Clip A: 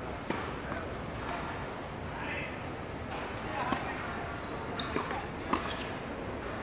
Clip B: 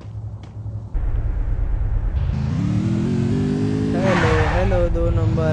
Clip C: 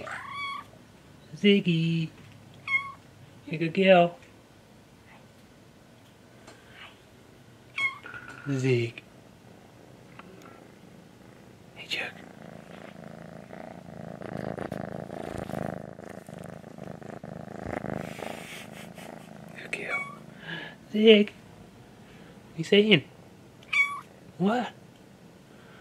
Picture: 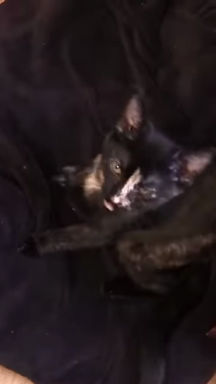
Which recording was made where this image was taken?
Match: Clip C